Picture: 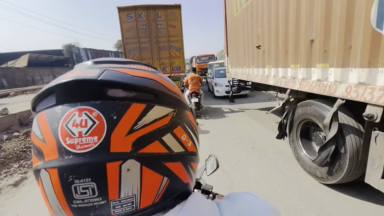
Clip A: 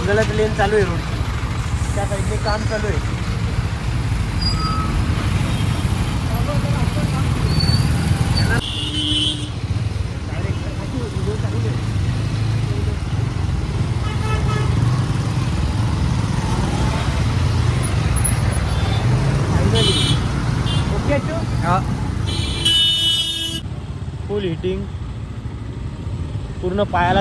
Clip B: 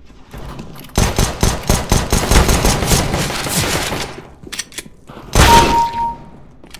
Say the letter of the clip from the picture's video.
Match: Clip A